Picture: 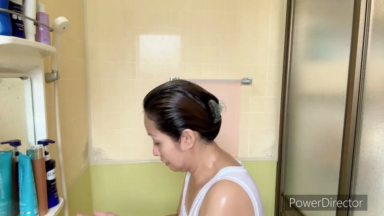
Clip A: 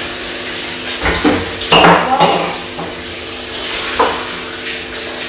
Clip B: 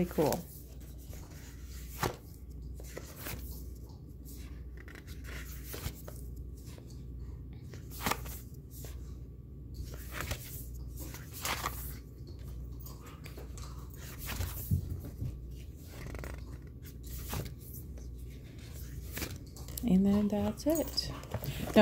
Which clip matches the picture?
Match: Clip A